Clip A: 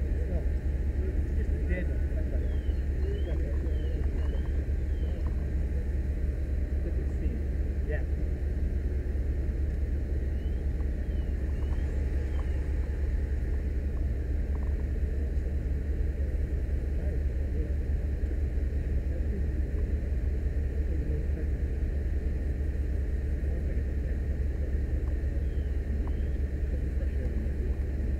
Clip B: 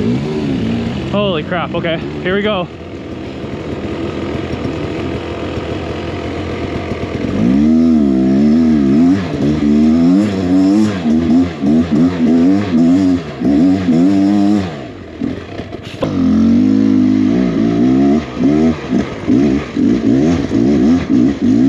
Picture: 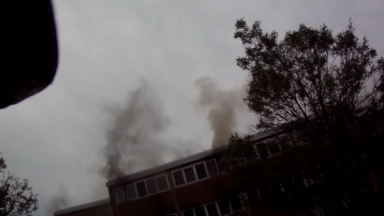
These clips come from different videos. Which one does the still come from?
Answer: A